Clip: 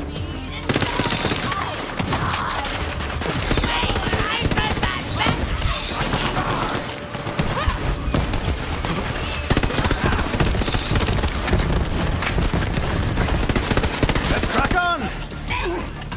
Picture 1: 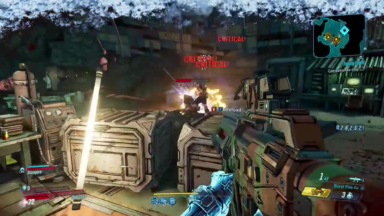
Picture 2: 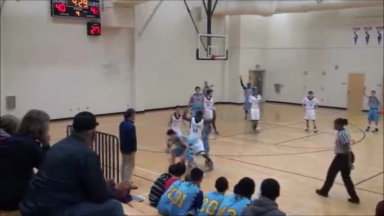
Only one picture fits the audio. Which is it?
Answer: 1